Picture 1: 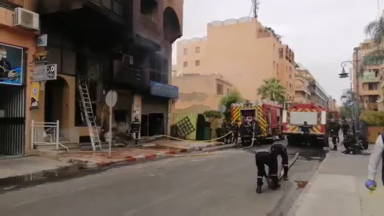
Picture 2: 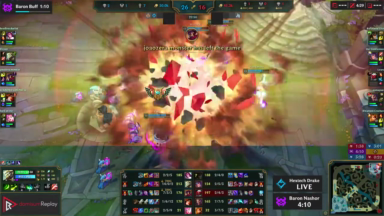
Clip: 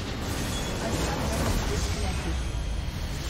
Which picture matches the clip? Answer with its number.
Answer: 2